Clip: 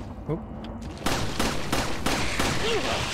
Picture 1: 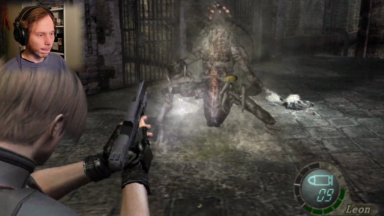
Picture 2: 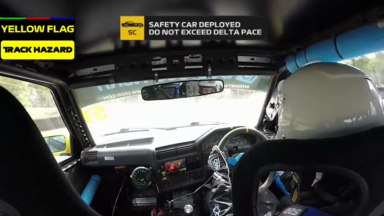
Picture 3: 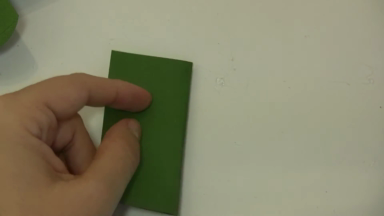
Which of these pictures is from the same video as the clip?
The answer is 1